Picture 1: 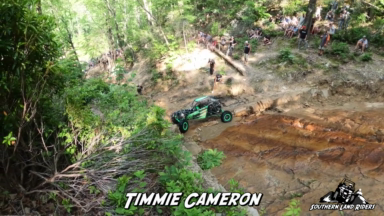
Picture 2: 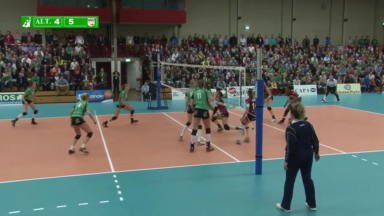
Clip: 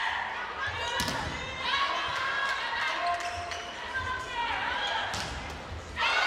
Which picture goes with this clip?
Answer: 2